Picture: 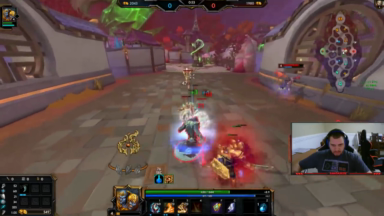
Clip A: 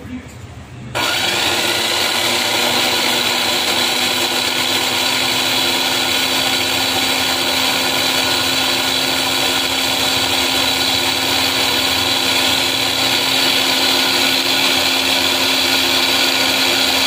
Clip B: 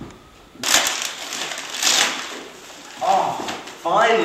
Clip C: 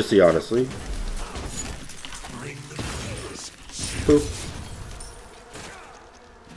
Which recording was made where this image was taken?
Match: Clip C